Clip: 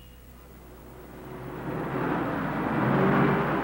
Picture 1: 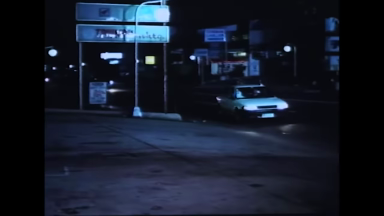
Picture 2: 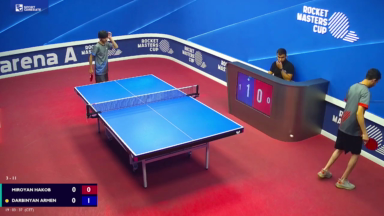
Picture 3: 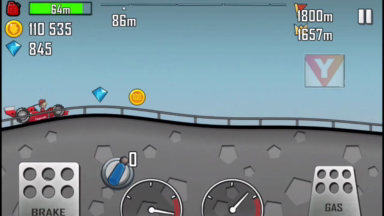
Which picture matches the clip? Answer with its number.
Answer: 1